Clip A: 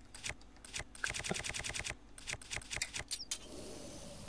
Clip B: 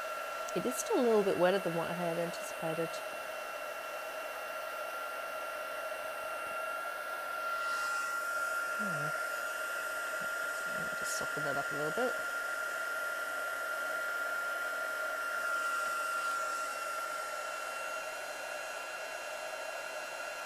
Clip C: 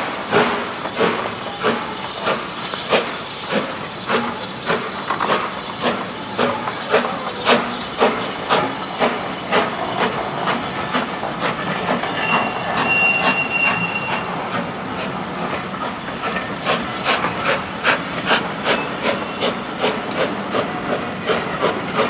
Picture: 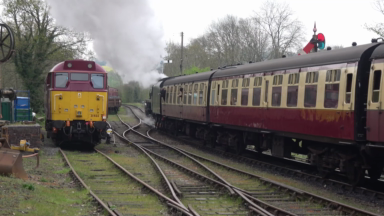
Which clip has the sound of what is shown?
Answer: C